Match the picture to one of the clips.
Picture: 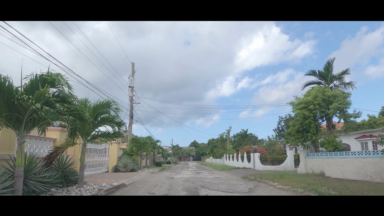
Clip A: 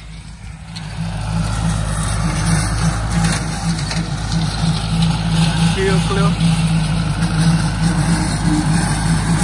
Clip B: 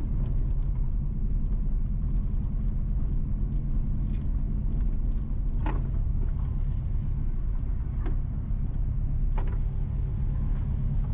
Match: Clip B